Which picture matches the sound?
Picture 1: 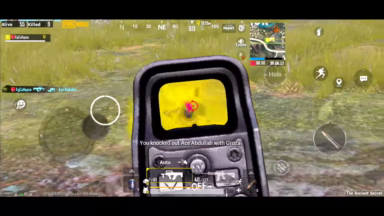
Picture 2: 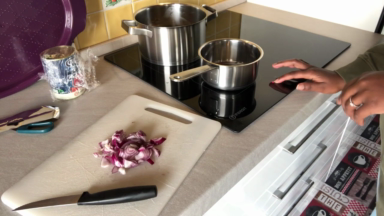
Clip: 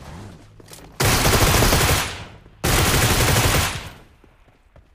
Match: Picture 1